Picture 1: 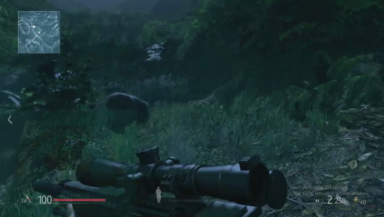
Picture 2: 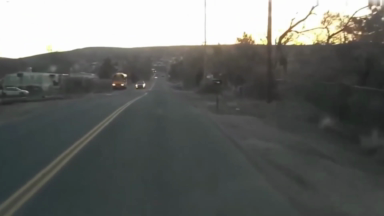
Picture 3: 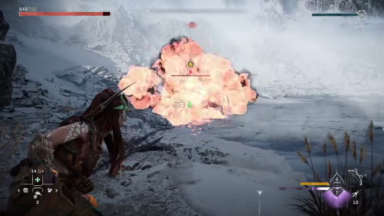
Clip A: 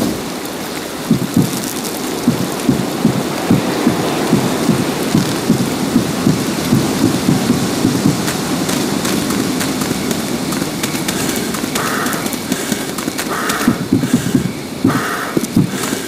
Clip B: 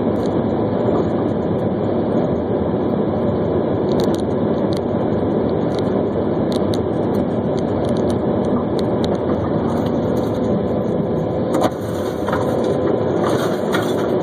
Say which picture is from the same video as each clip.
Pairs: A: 1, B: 2